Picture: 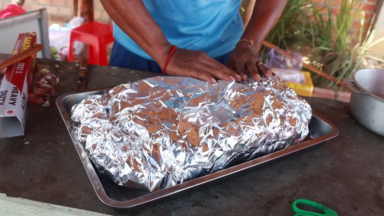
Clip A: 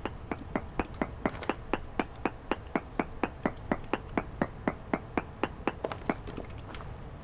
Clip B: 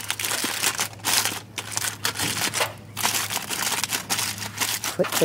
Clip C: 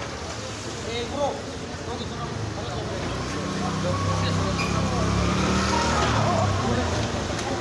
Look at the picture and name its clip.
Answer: B